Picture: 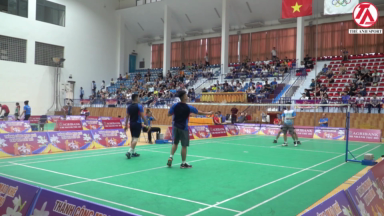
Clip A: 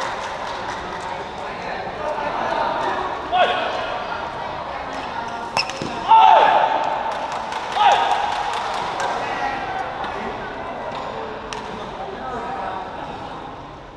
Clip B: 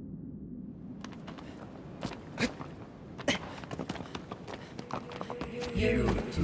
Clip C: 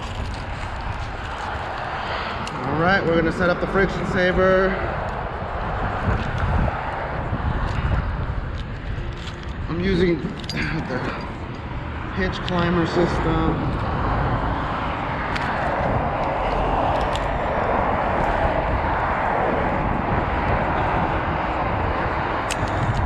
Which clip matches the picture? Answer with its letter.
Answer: A